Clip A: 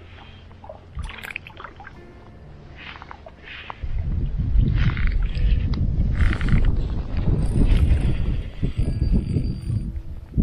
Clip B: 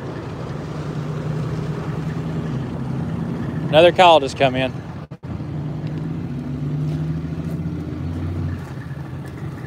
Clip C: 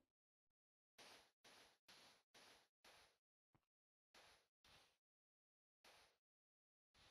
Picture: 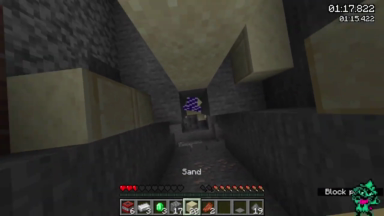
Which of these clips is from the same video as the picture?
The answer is C